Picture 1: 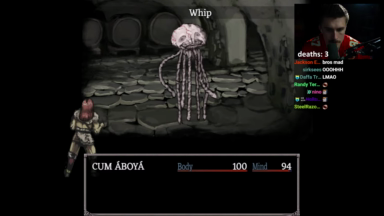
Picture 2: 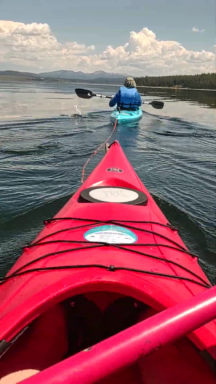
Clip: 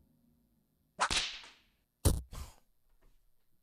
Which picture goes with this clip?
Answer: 1